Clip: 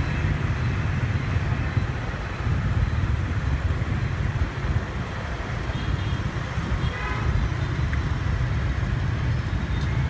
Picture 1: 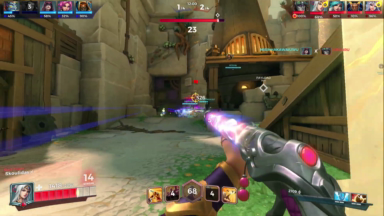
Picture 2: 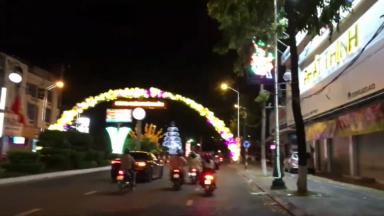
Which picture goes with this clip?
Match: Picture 2